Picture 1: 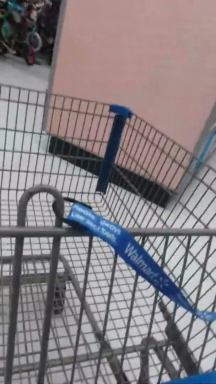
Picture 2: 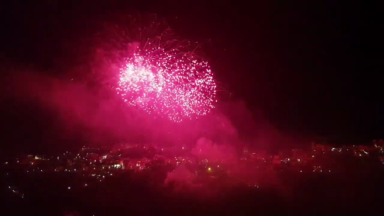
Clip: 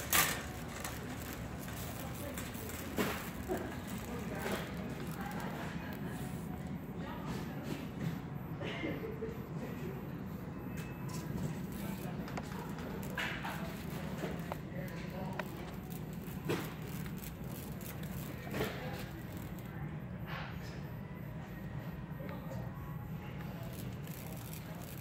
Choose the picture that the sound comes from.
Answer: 1